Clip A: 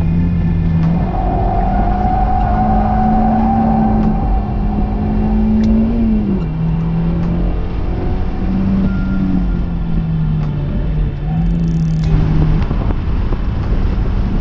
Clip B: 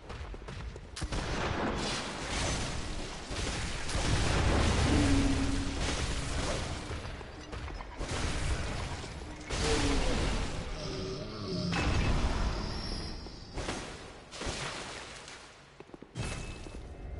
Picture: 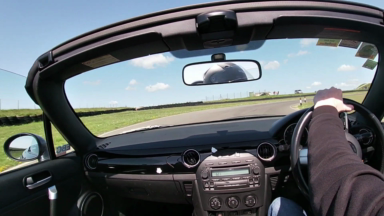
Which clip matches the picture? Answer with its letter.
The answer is A